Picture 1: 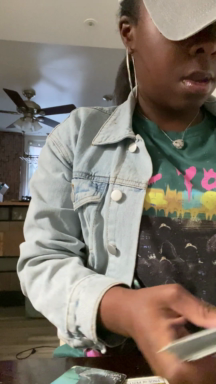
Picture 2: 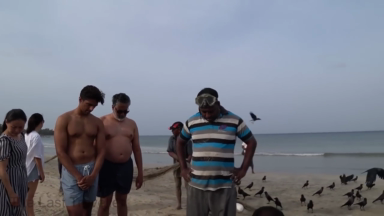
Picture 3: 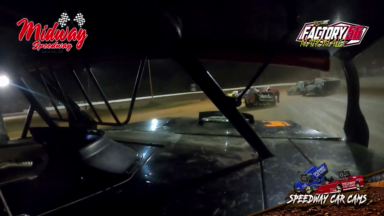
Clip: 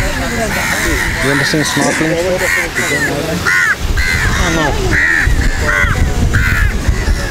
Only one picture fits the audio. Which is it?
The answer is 2